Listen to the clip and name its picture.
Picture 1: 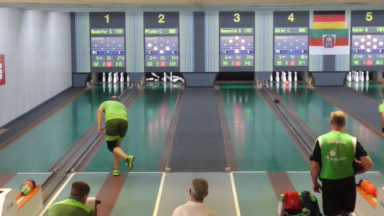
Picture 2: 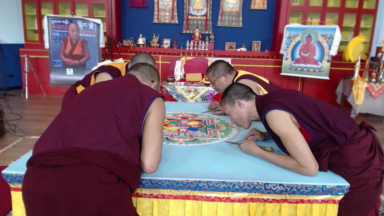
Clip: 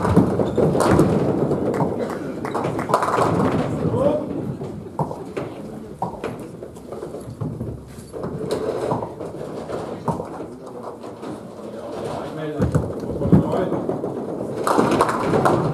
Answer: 1